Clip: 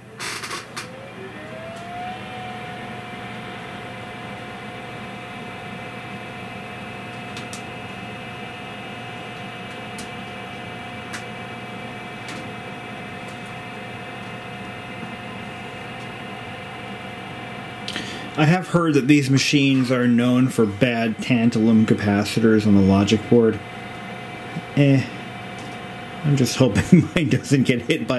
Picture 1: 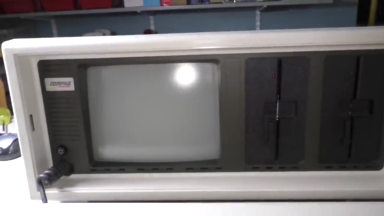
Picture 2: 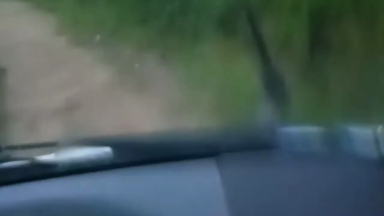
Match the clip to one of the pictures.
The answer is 1